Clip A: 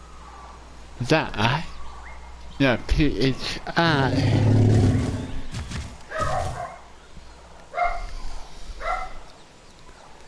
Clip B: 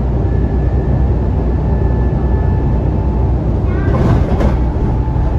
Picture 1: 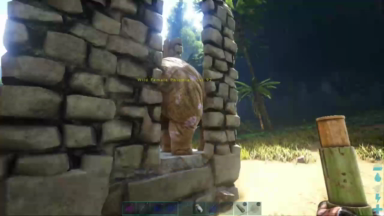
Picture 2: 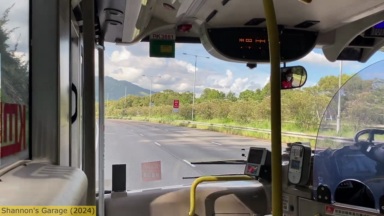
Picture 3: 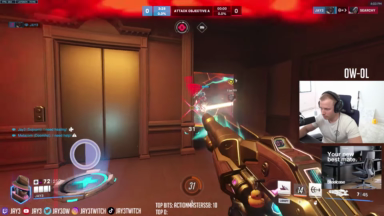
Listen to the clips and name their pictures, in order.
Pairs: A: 1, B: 2